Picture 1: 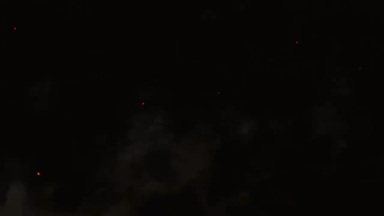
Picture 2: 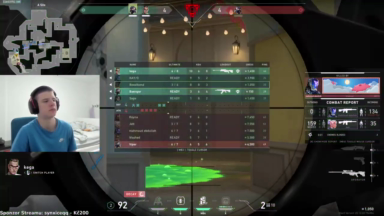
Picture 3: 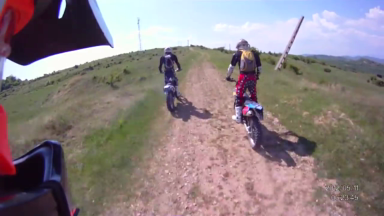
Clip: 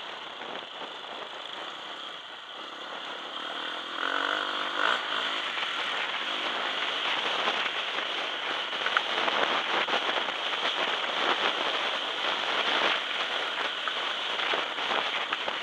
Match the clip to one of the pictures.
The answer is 3